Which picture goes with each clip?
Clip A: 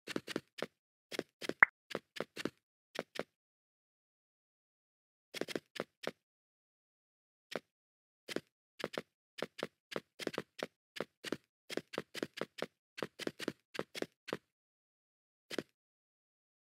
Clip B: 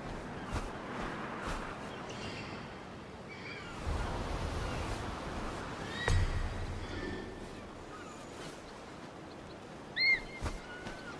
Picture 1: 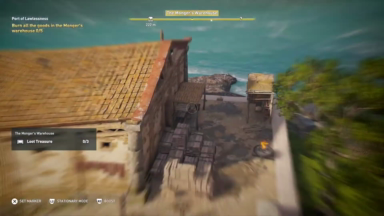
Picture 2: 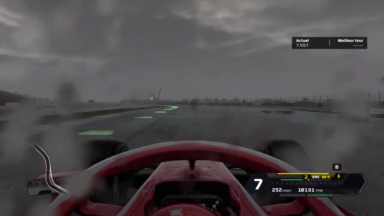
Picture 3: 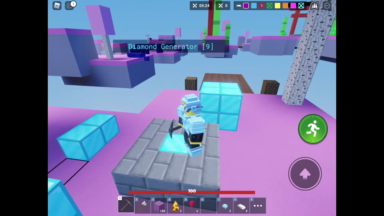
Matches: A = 3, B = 1